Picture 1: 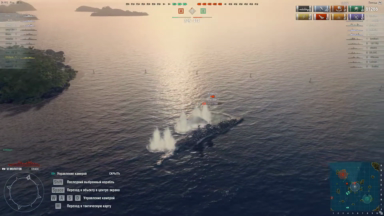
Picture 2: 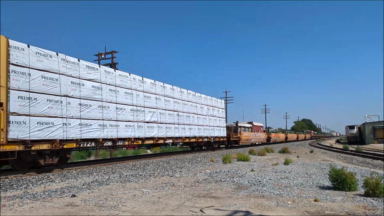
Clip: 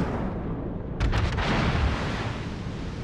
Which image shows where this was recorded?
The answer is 1